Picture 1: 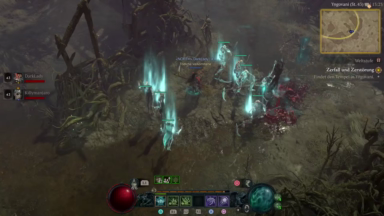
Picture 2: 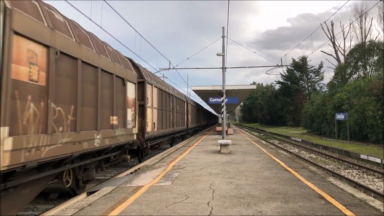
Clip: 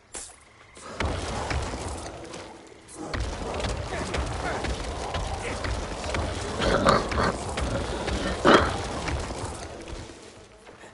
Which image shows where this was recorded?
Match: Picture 1